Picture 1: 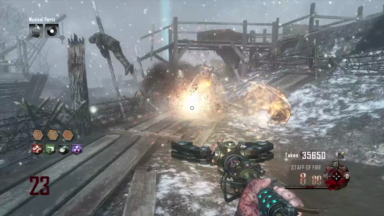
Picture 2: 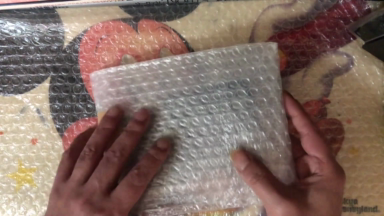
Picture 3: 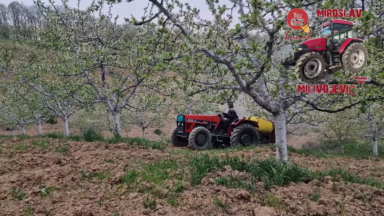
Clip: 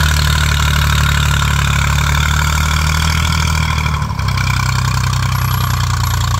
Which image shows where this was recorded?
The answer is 3